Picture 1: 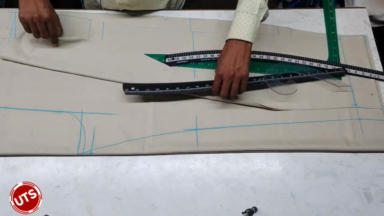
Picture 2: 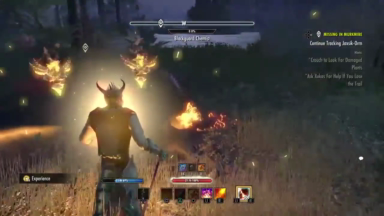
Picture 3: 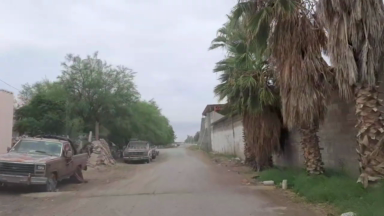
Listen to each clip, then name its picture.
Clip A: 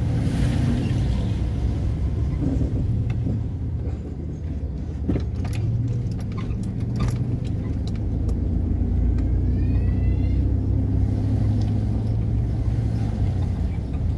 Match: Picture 3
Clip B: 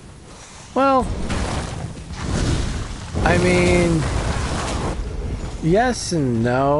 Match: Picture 2